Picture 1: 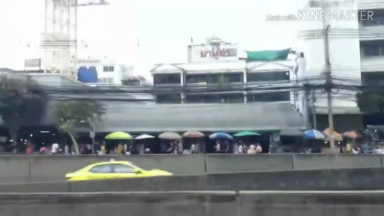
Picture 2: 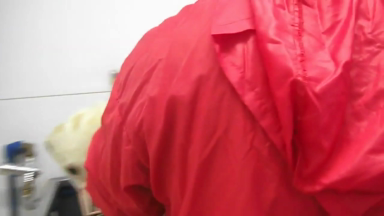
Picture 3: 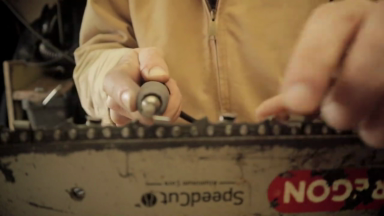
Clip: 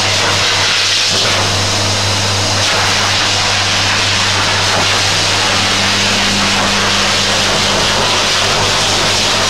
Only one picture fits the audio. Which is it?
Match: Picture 2